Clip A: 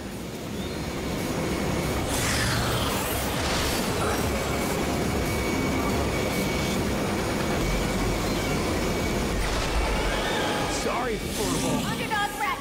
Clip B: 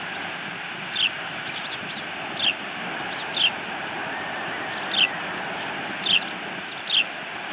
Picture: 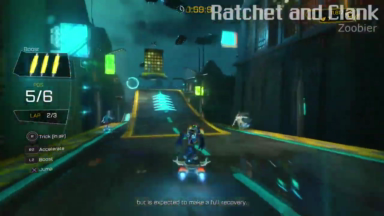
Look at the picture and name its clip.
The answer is A